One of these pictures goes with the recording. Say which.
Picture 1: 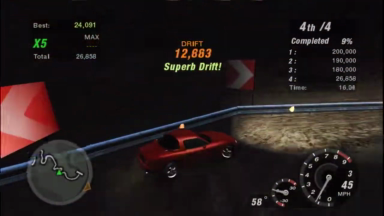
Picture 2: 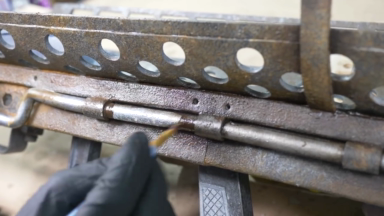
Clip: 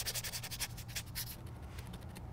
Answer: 2